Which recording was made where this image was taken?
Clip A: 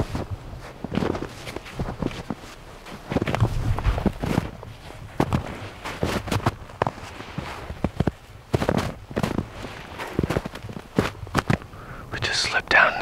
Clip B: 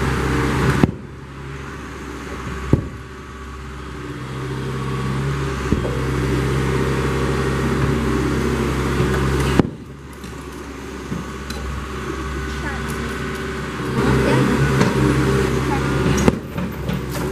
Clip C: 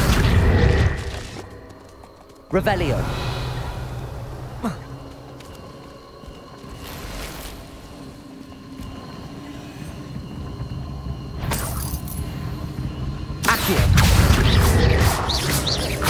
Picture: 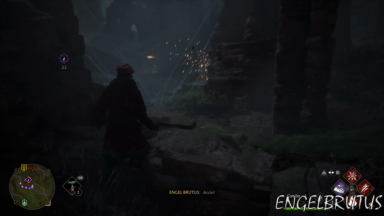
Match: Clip C